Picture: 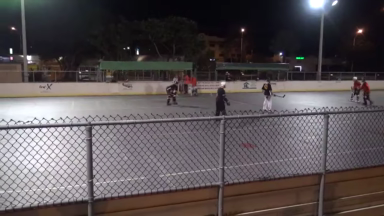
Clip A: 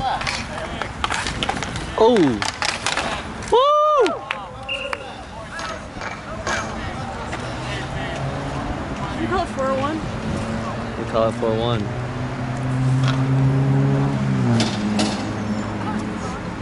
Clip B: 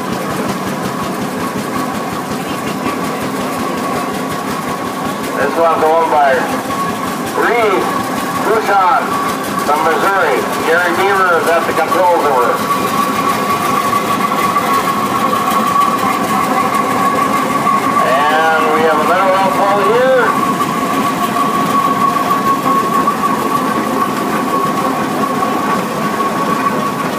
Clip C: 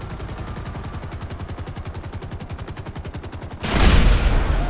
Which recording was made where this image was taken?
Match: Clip A